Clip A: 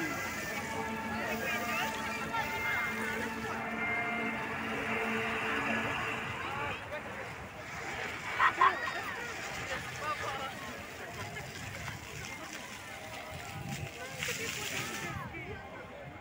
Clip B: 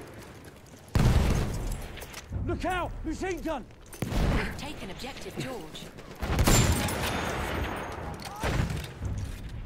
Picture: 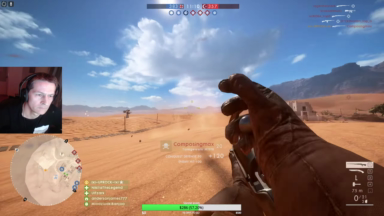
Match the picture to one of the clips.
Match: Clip B